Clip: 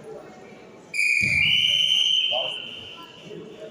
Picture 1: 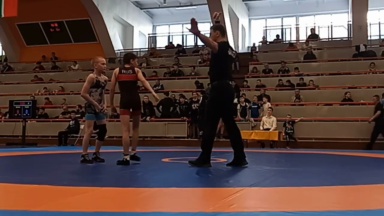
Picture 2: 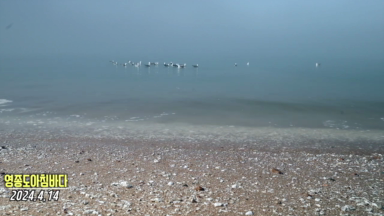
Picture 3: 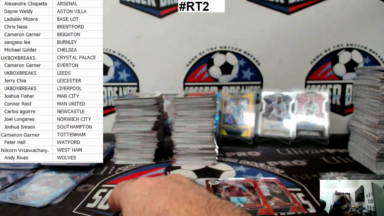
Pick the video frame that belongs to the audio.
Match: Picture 1